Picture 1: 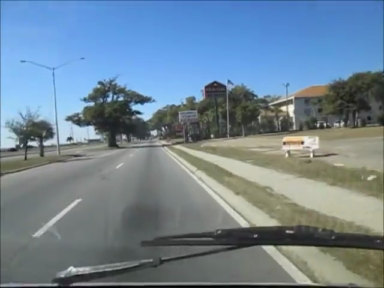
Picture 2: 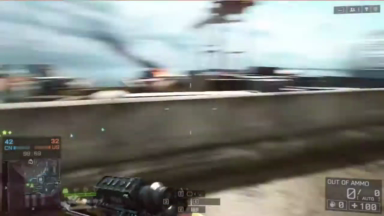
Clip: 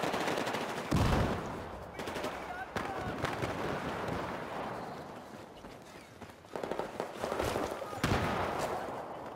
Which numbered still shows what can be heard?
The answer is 2